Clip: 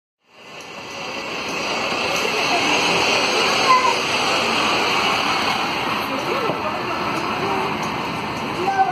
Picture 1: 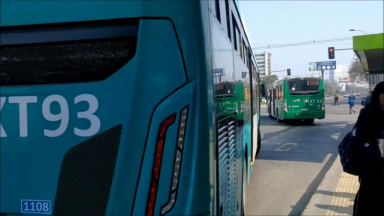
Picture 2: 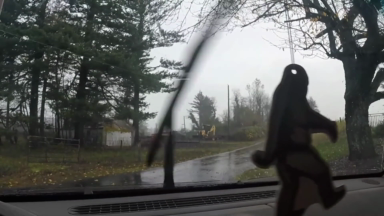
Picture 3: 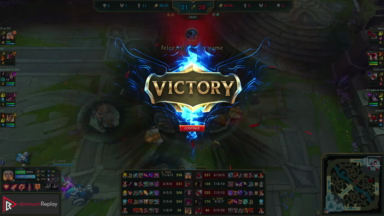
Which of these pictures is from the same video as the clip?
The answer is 1